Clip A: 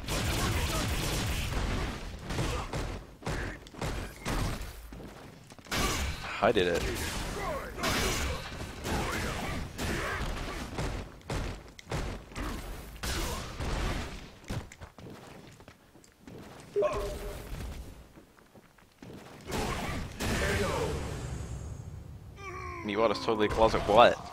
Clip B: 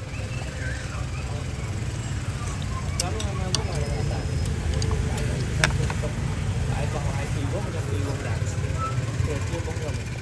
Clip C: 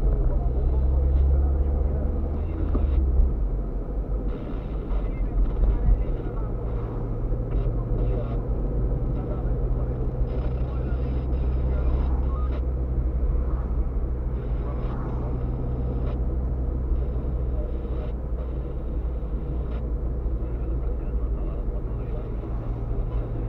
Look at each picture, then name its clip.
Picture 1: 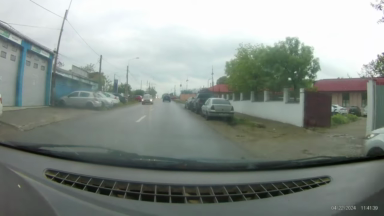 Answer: C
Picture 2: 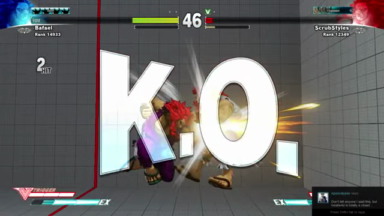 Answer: A